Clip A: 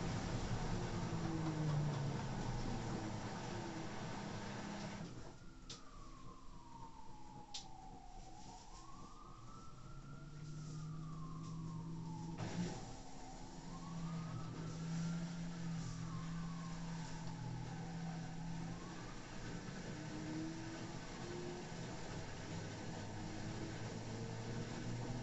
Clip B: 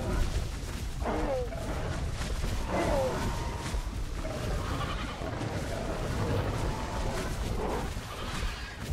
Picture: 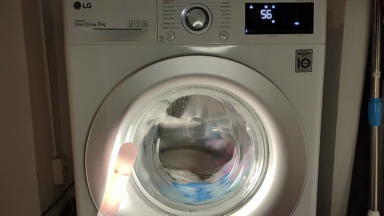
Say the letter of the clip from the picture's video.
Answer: A